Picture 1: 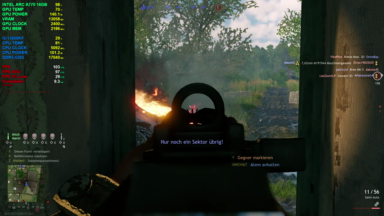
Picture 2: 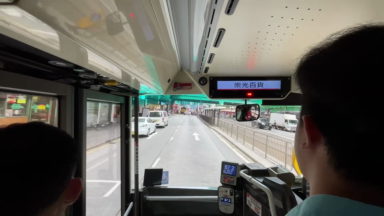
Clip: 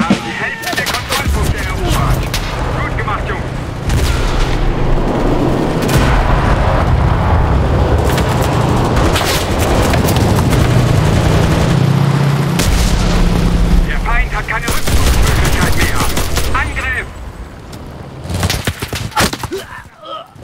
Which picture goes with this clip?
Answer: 1